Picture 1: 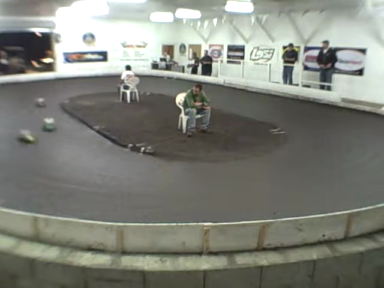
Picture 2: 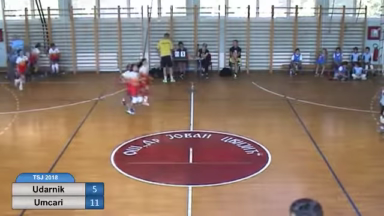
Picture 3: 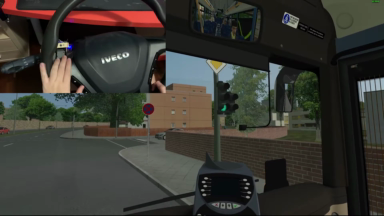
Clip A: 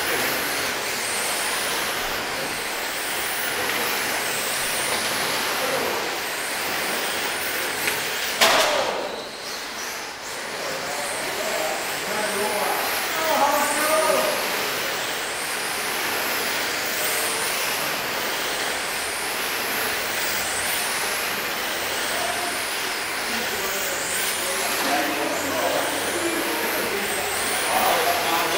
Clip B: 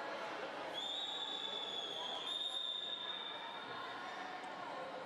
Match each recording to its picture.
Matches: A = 1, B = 2